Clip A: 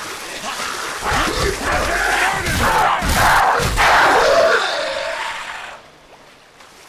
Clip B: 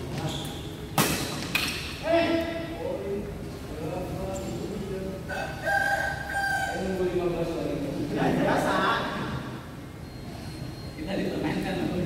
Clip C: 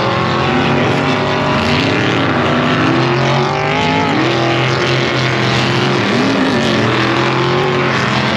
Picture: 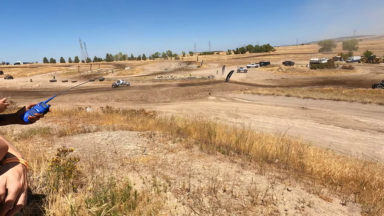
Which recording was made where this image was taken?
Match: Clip C